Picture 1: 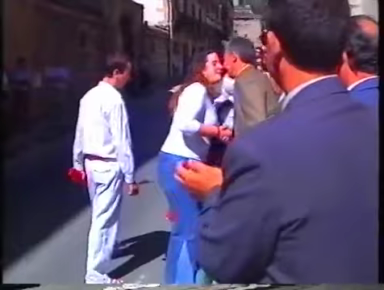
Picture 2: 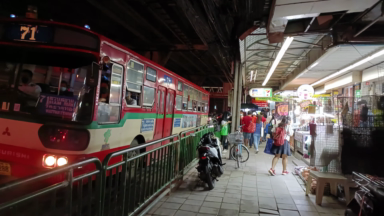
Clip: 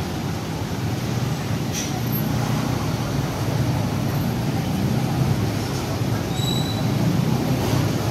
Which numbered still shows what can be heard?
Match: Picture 2